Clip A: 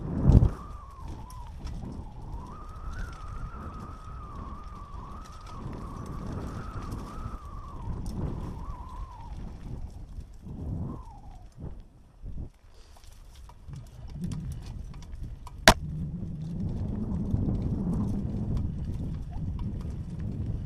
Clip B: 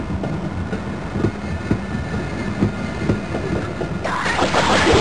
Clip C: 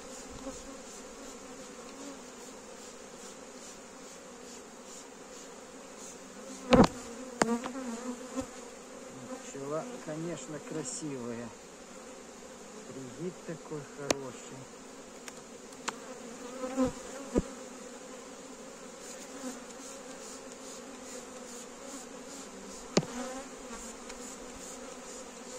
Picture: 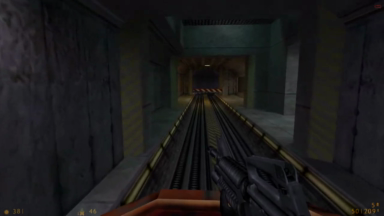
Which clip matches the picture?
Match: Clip B